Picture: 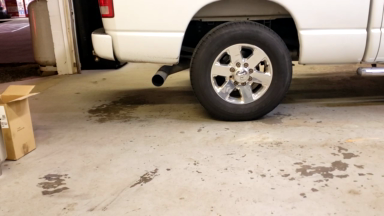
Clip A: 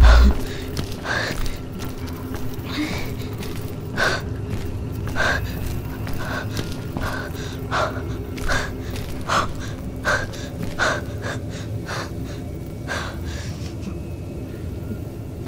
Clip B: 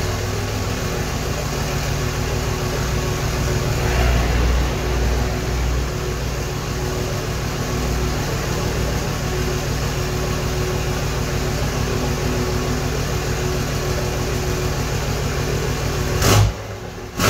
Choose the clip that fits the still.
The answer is B